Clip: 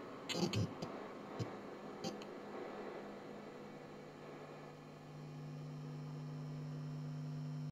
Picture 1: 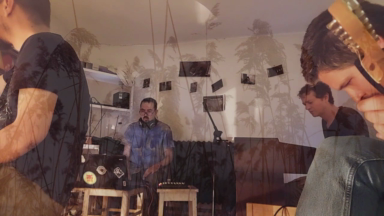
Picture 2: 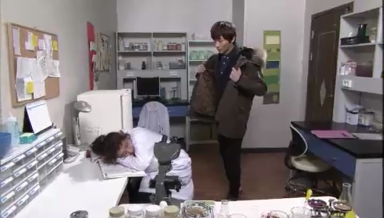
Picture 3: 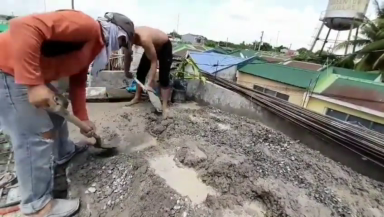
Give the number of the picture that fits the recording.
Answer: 1